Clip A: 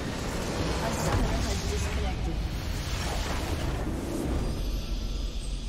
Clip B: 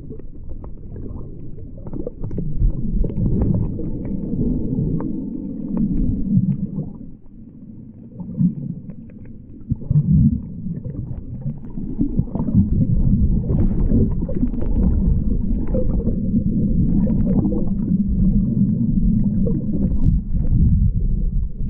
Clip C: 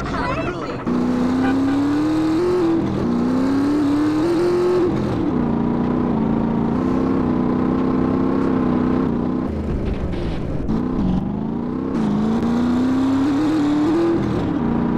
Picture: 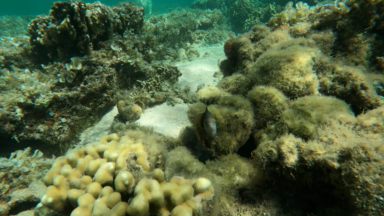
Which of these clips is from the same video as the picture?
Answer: B